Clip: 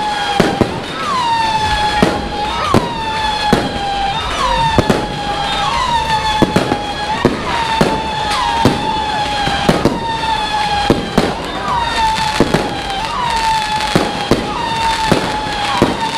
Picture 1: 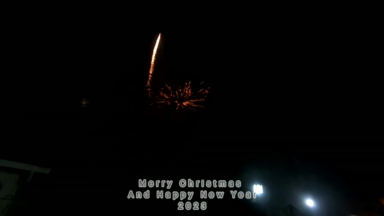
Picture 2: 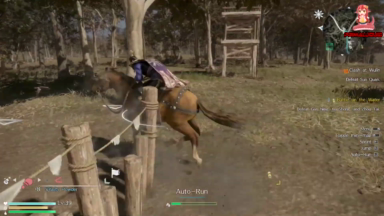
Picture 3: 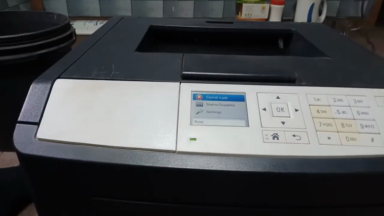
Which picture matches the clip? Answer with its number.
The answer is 1